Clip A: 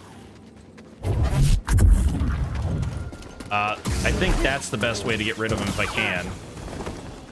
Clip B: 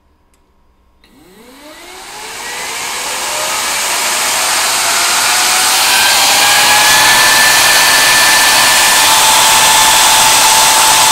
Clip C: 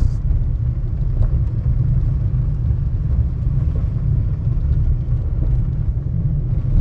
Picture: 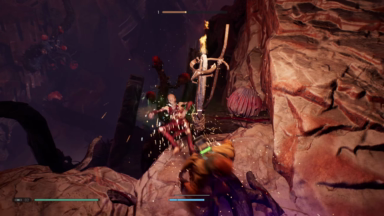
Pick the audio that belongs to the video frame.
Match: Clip A